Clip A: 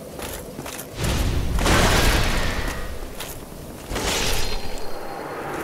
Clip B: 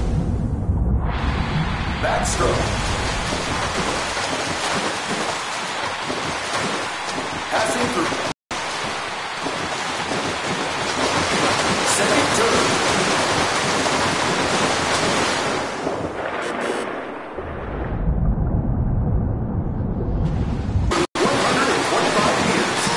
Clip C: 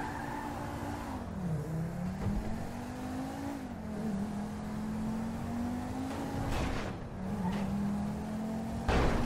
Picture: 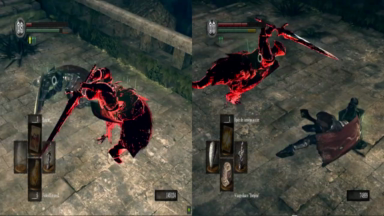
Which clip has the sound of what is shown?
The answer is A